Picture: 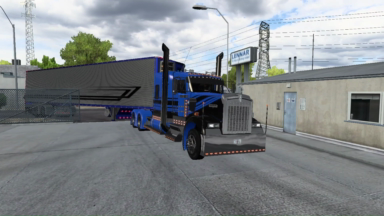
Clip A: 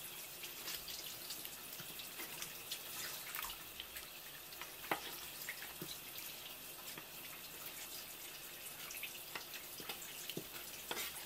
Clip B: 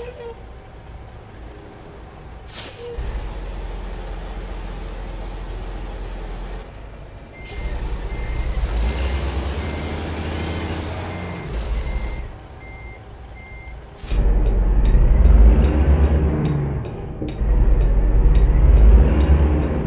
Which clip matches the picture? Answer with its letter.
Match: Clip B